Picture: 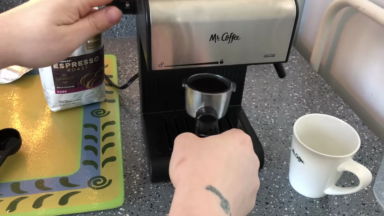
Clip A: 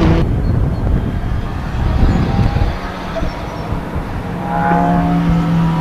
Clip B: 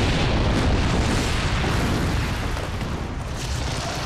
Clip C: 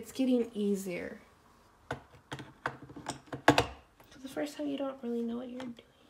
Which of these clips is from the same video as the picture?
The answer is C